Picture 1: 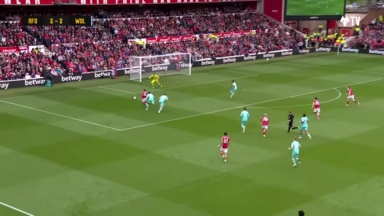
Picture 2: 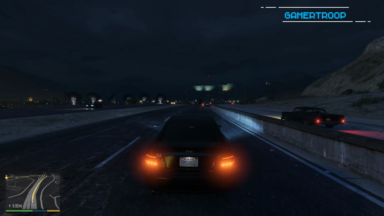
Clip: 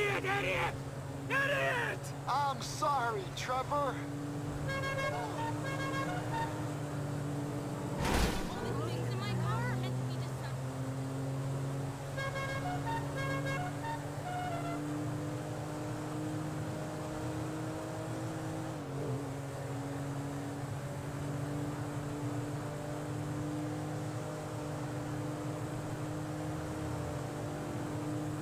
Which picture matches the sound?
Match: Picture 2